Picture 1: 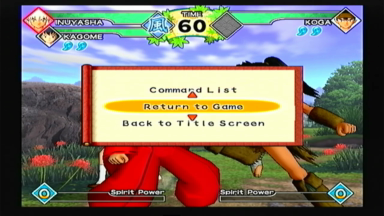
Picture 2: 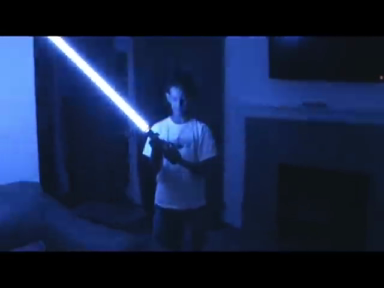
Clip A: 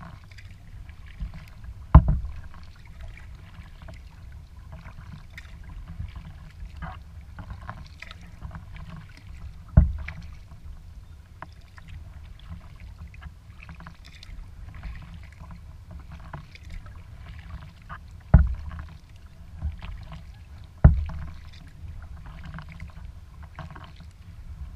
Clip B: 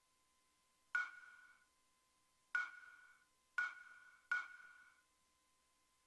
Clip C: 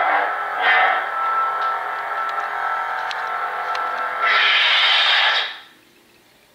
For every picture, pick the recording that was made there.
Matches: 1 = B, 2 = C